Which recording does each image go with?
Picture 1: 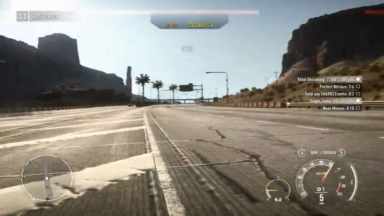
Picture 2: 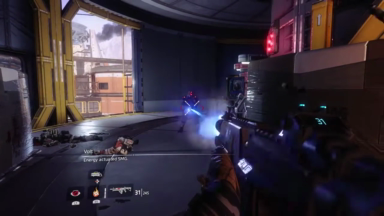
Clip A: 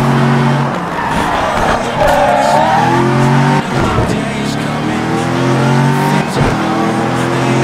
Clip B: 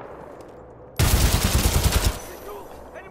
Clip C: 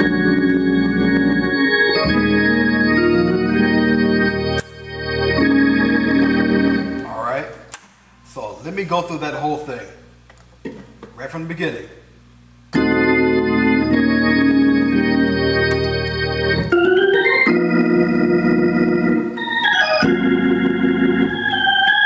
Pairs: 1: A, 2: B